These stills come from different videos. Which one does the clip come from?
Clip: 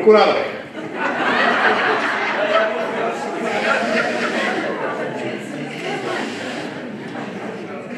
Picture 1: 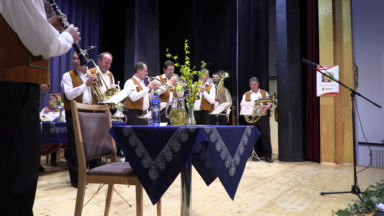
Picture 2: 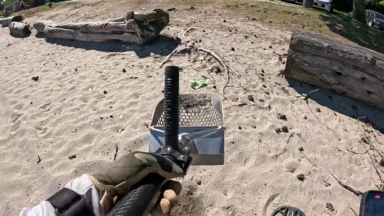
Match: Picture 1